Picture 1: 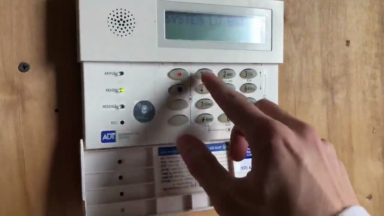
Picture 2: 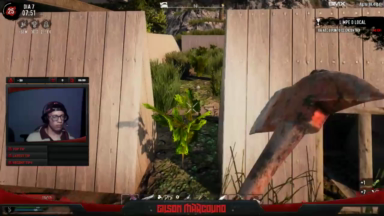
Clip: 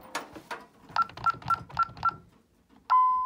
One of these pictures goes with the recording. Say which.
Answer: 1